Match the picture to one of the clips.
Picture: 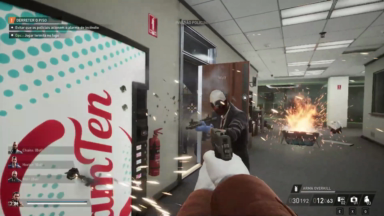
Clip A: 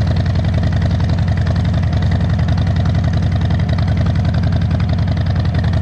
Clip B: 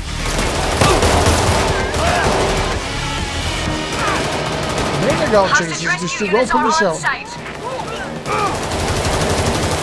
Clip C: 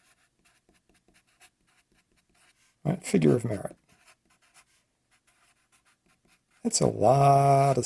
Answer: B